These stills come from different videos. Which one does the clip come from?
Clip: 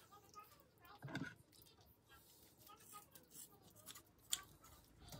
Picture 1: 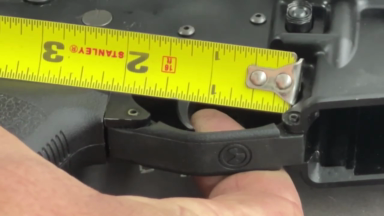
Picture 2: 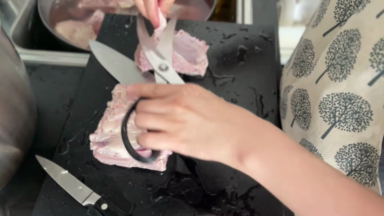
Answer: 2